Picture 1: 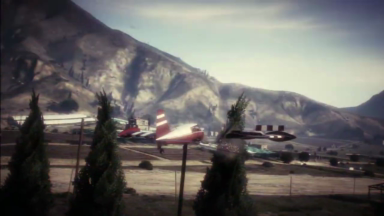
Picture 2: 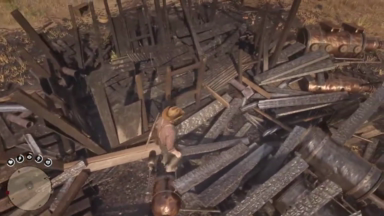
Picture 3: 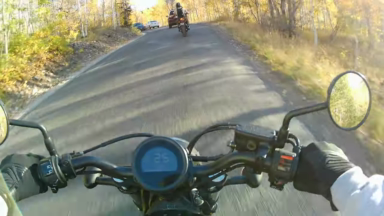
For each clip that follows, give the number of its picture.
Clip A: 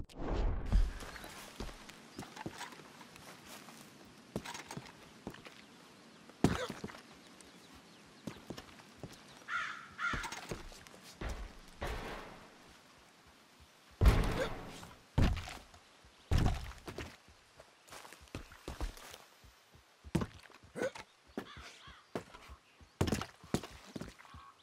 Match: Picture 2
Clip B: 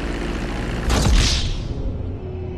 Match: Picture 1